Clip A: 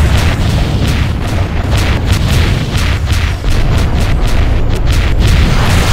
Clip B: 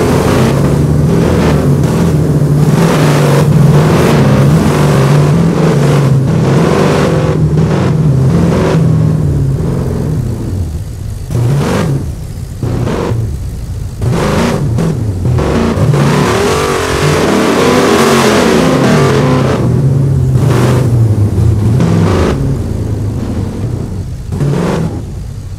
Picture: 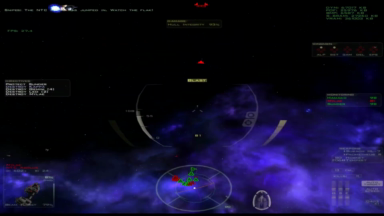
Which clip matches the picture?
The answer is A